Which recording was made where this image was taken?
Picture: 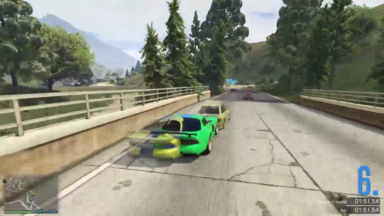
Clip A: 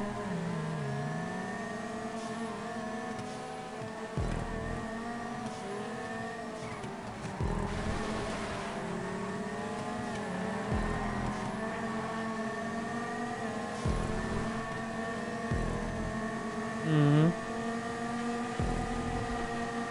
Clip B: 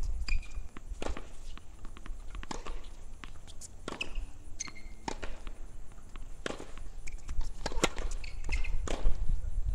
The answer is A